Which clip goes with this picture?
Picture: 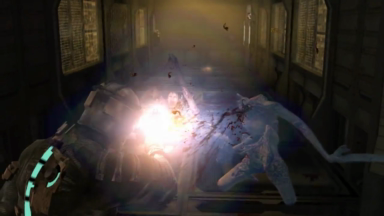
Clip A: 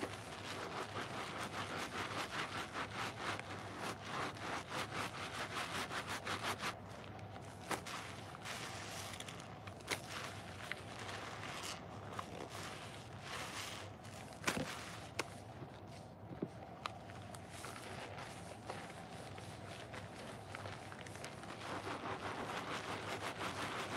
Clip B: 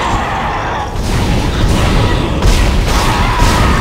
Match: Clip B